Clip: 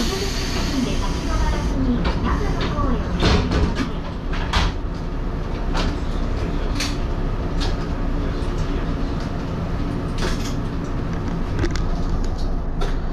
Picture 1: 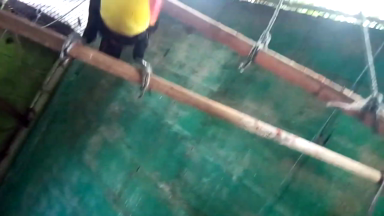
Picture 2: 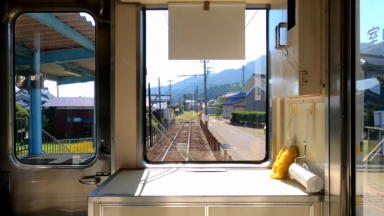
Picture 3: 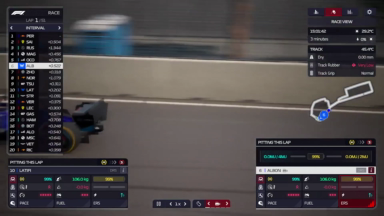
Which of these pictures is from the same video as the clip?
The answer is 2